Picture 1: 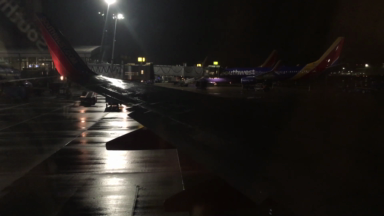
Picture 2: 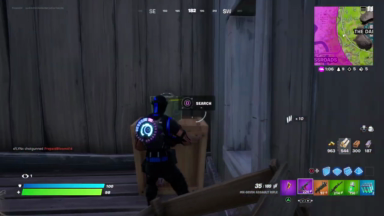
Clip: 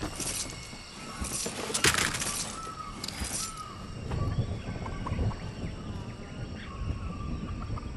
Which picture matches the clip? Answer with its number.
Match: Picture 2